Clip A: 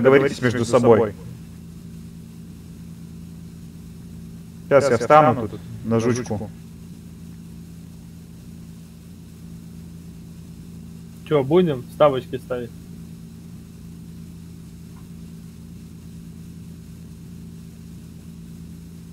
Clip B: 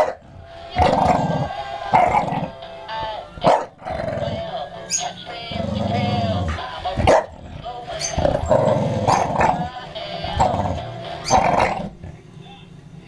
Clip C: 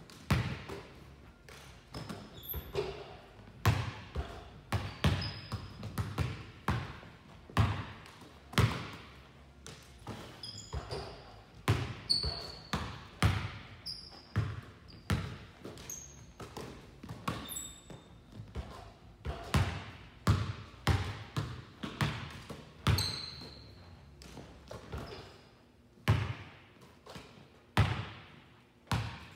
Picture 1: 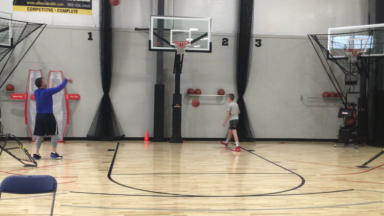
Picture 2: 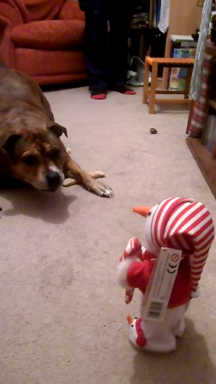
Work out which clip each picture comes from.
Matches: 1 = C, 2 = B